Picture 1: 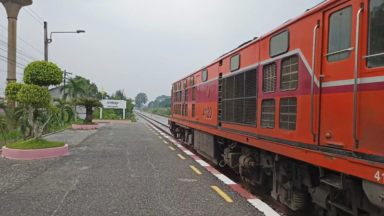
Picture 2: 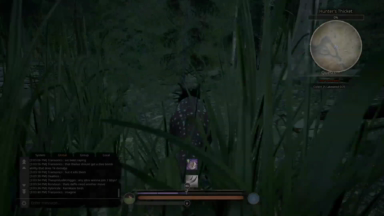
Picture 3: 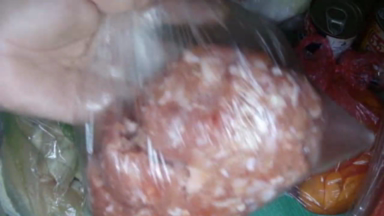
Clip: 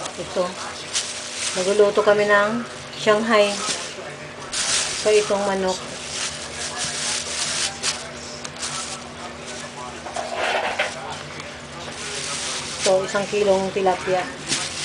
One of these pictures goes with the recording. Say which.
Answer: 3